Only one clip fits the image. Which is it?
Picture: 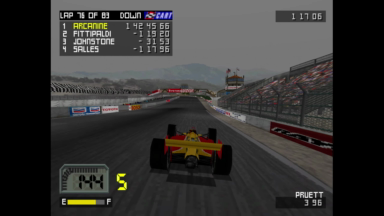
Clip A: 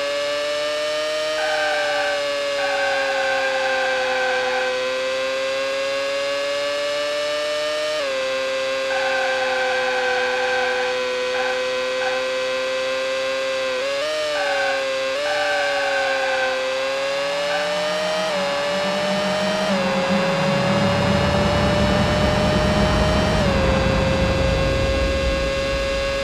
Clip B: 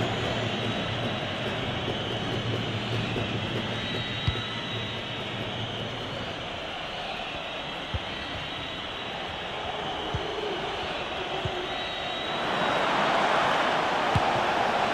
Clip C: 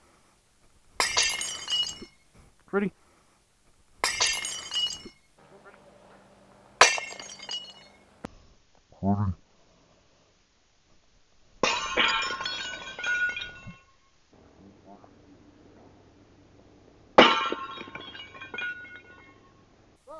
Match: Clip A